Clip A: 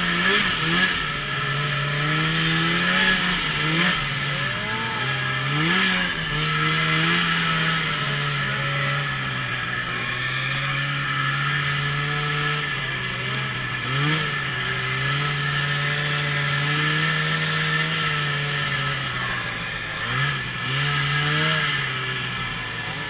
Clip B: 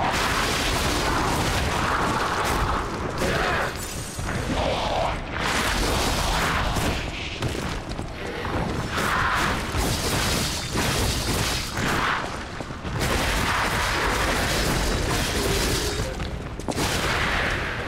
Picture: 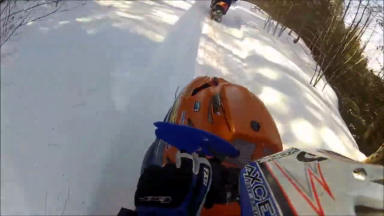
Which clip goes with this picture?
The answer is A